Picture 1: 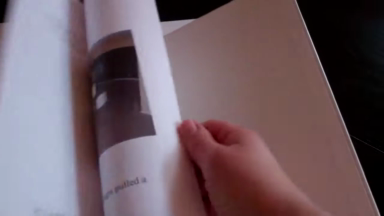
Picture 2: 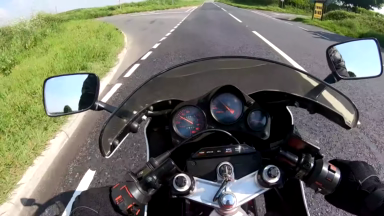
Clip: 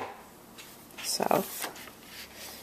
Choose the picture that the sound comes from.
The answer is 1